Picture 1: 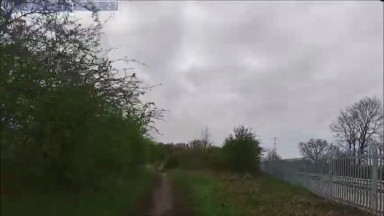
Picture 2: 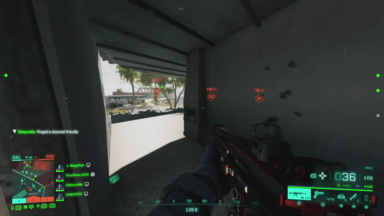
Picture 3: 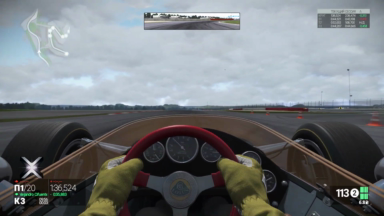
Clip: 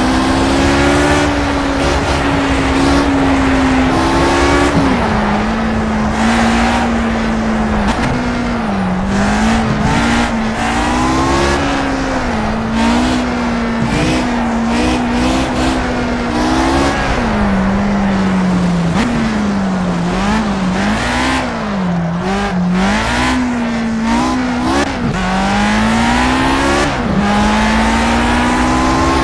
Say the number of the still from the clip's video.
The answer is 3